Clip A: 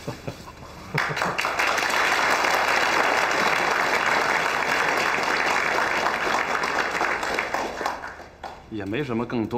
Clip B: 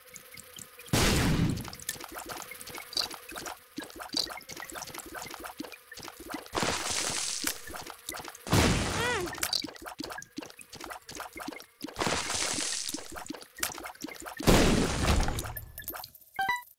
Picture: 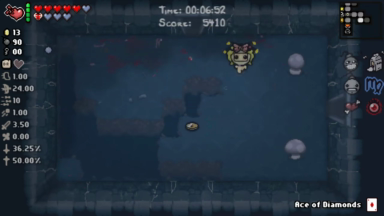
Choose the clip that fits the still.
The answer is B